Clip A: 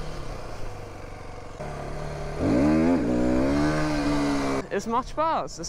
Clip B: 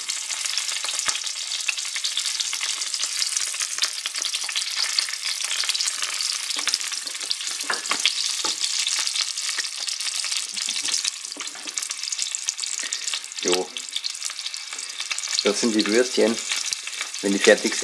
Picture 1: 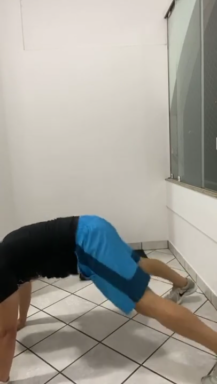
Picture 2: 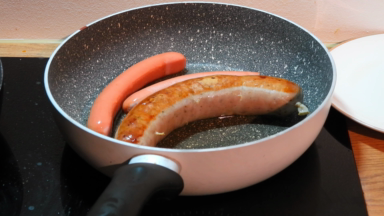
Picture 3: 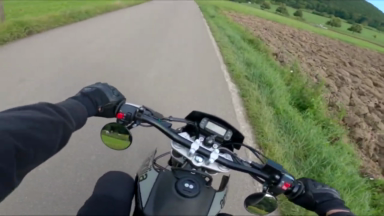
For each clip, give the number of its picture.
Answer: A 3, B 2